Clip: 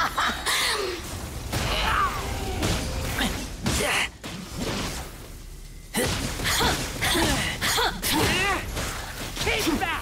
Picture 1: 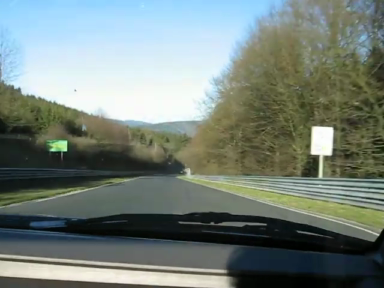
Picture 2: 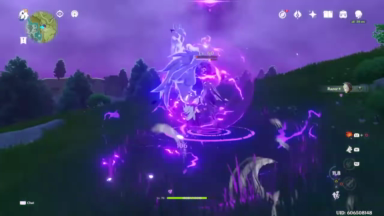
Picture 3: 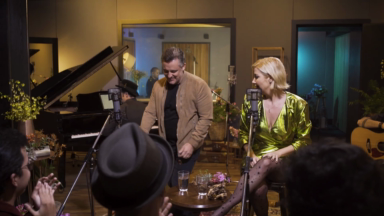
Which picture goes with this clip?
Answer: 2